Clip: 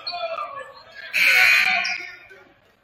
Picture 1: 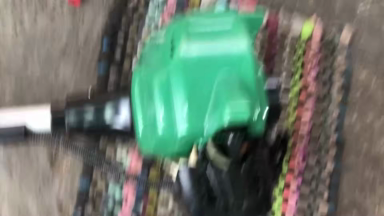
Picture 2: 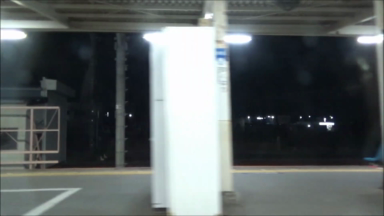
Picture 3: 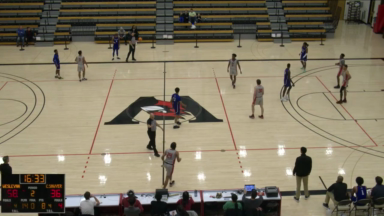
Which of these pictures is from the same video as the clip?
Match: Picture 3